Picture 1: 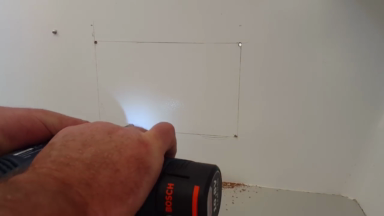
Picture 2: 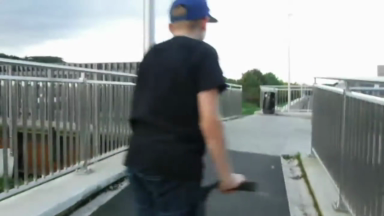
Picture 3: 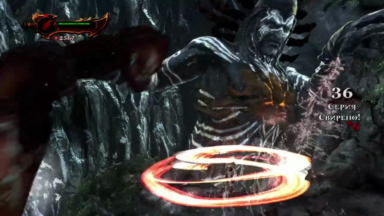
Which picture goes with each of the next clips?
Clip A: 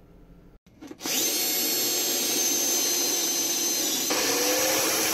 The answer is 1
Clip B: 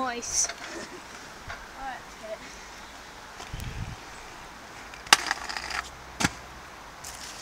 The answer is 2